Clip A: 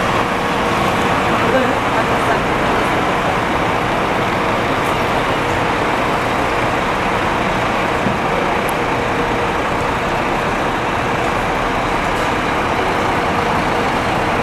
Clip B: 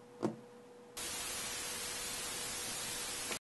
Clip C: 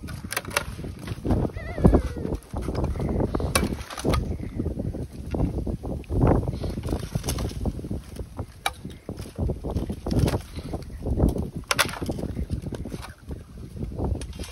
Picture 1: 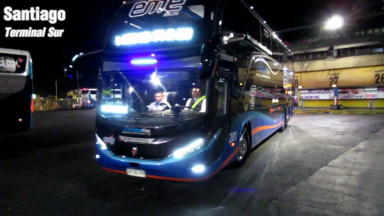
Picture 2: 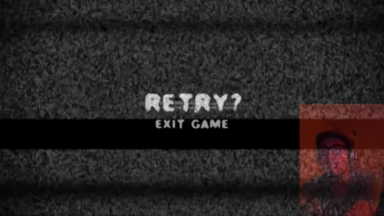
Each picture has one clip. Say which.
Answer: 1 A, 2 B